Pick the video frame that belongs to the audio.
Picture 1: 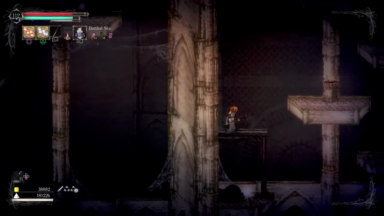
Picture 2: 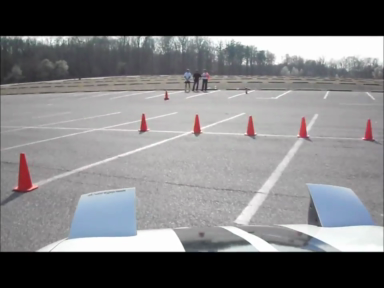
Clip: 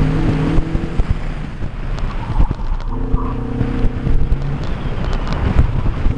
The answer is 2